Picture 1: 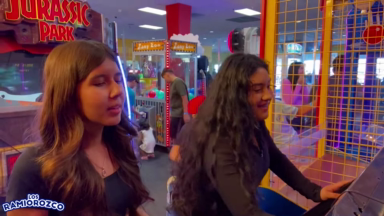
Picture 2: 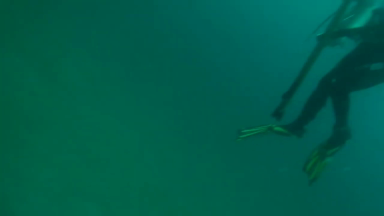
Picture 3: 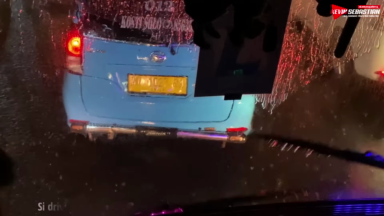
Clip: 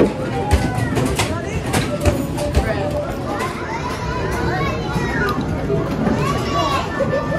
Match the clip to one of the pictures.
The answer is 1